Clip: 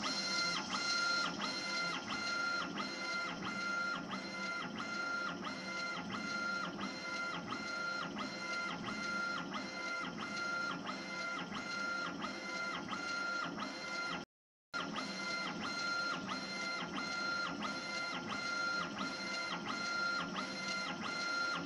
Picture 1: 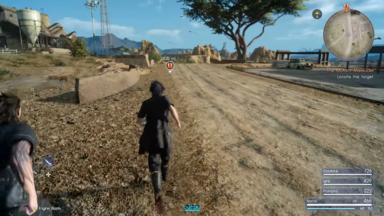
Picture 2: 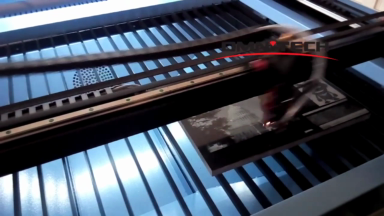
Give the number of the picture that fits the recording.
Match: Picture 2